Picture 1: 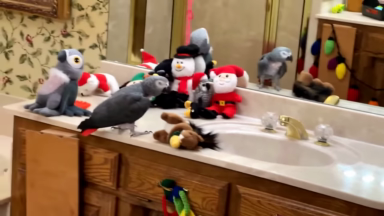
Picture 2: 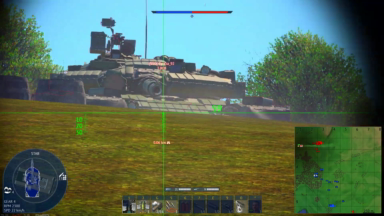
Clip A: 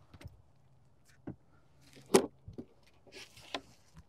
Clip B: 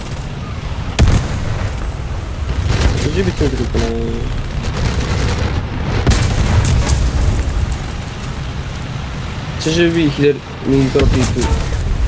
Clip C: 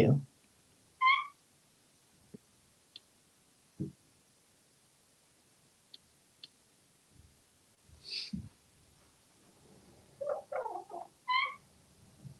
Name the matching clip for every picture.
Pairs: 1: C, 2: B